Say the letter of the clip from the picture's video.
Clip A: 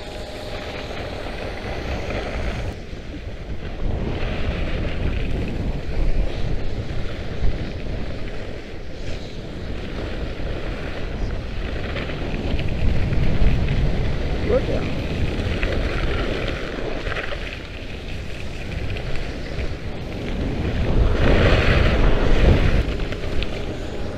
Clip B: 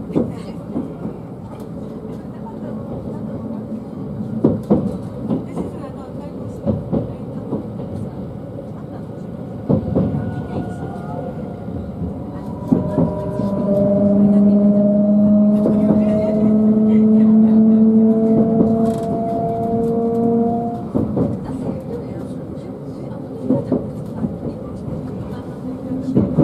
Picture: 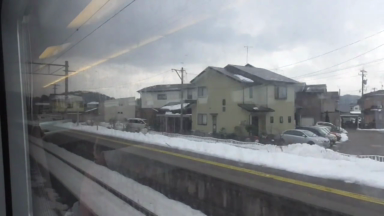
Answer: B